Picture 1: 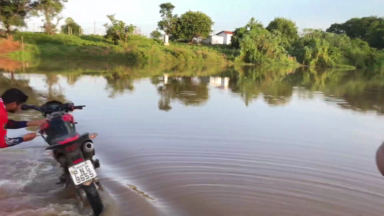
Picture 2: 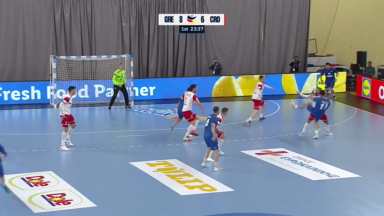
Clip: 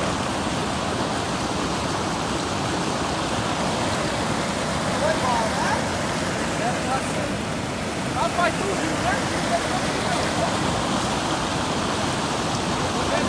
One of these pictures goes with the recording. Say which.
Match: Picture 1